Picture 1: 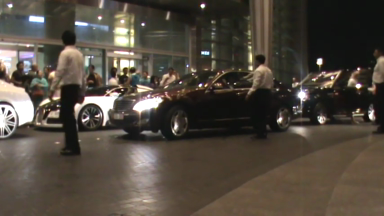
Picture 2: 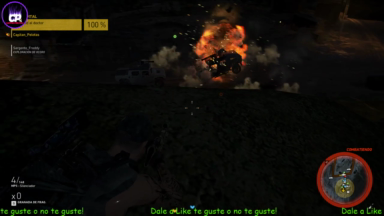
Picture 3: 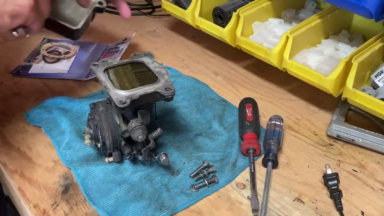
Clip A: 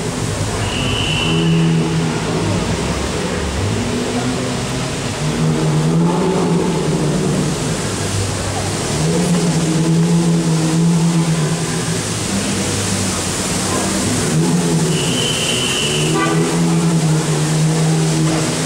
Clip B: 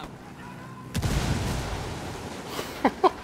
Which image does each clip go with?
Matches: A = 1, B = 2